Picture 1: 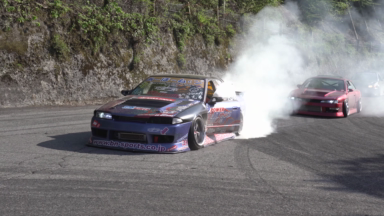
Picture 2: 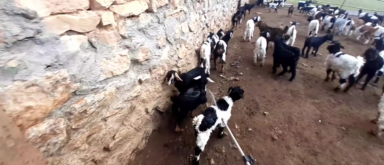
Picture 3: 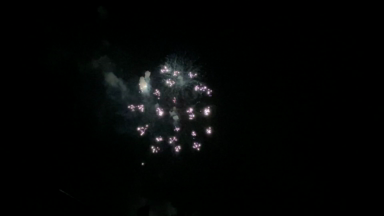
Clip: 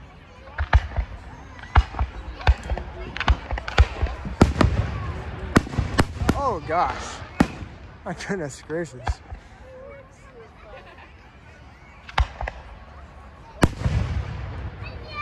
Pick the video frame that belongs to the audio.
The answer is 3